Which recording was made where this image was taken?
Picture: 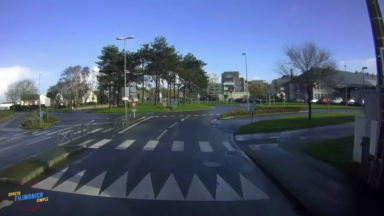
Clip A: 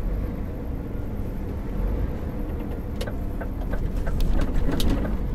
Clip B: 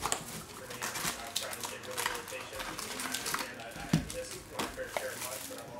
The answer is A